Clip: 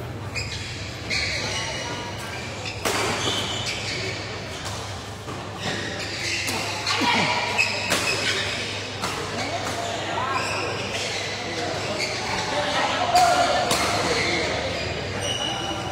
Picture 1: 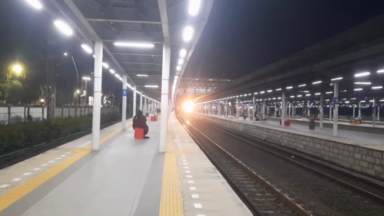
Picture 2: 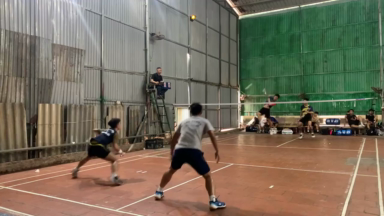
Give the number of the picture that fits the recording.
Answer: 2